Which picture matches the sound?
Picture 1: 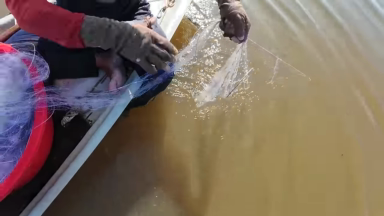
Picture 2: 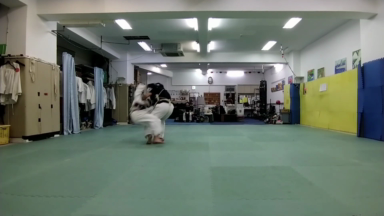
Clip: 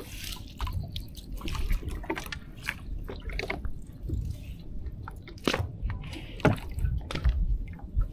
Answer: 1